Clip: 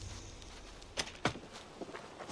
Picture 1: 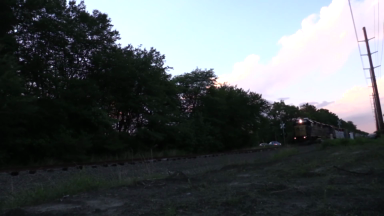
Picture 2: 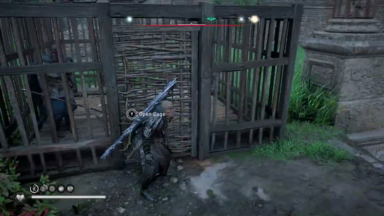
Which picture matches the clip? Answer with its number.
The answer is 2